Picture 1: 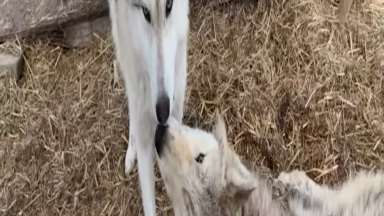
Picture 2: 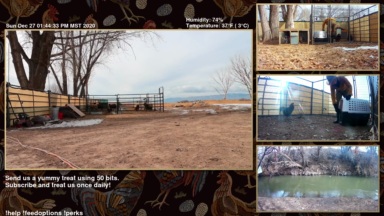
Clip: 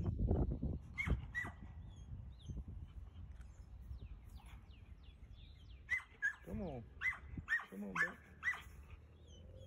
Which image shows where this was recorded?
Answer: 1